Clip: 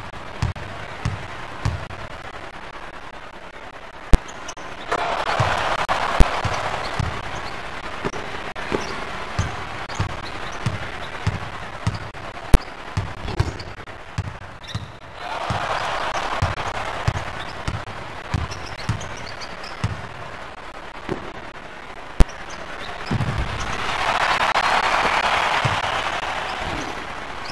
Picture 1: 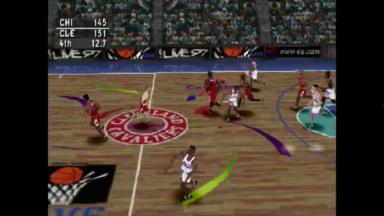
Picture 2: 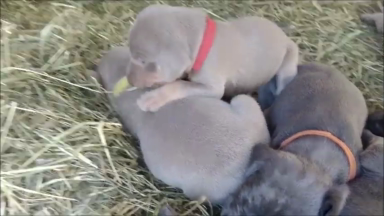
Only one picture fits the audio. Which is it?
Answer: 1